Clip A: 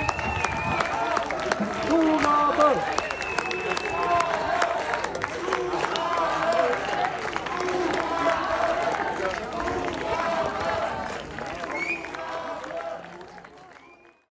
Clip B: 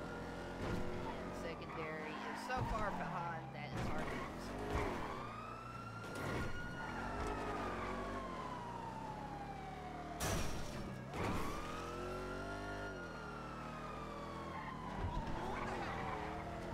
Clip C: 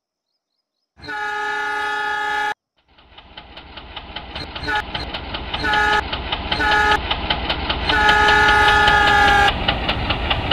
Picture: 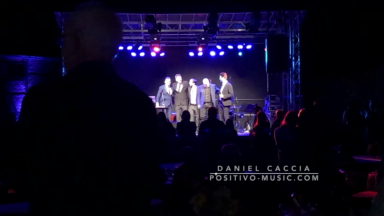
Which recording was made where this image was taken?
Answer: A